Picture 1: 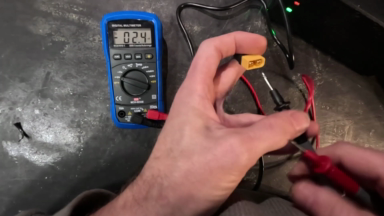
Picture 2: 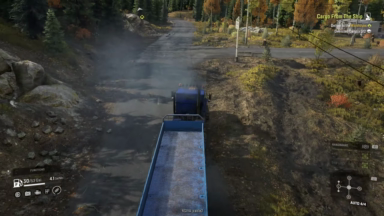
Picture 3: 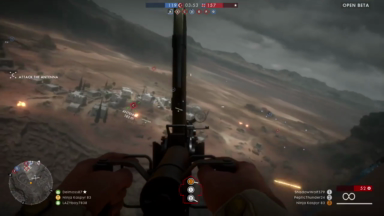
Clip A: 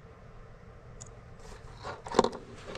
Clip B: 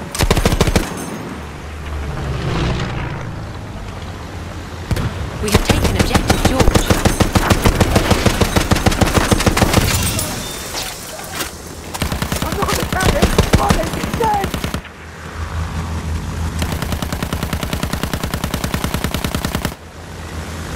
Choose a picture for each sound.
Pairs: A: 1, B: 3